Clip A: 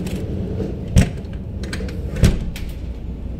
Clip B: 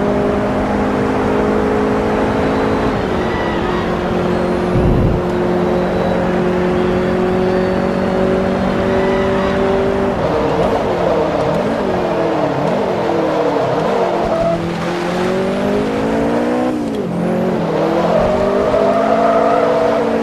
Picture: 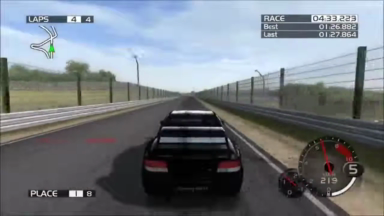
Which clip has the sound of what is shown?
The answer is B